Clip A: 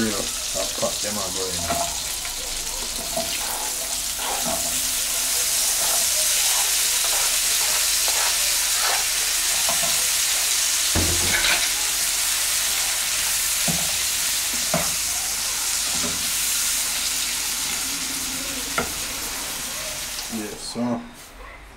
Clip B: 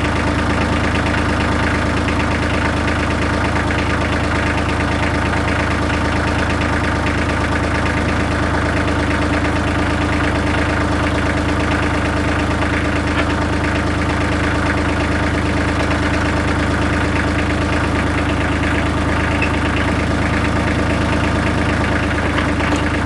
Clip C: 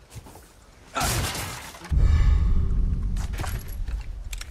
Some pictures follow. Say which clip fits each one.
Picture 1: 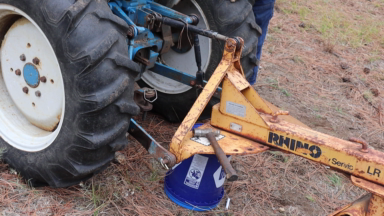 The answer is B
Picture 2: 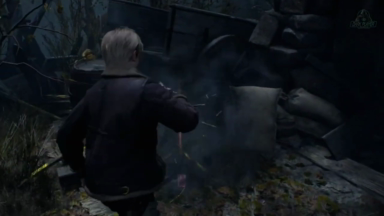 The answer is C